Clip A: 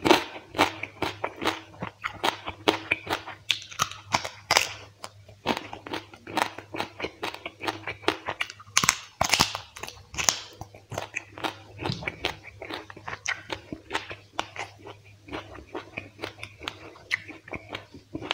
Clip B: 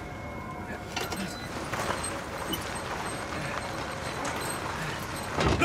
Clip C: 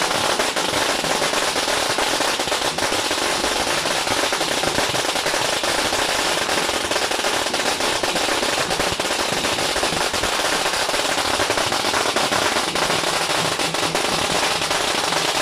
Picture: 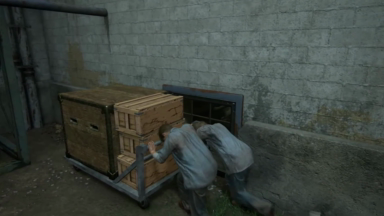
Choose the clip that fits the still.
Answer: B